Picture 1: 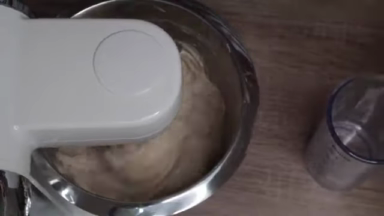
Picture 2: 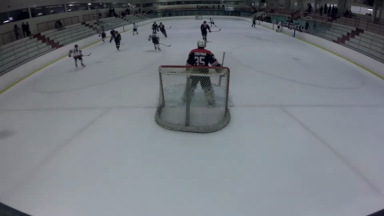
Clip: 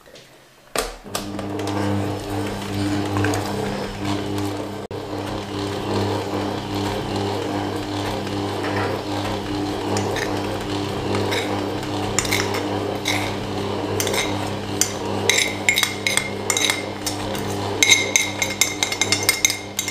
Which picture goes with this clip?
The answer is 1